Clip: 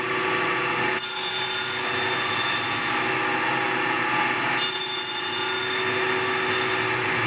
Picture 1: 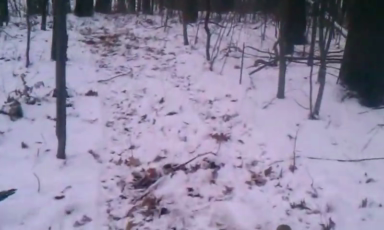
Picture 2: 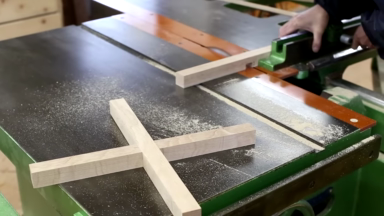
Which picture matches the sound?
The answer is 2